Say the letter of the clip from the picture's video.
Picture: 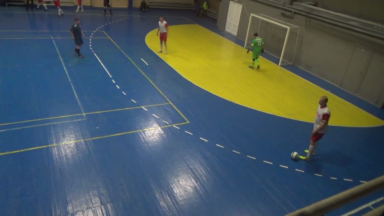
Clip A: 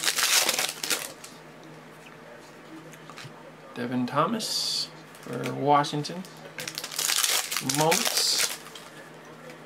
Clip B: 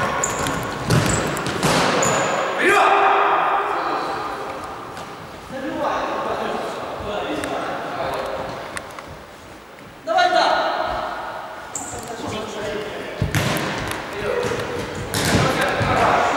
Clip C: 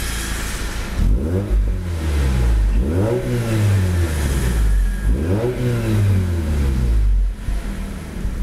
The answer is B